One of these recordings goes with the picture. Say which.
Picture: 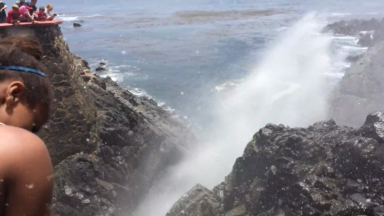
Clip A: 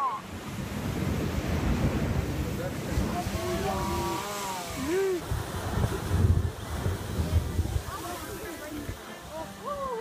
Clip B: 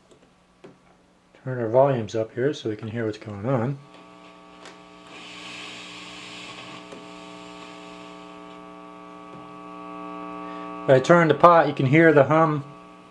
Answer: A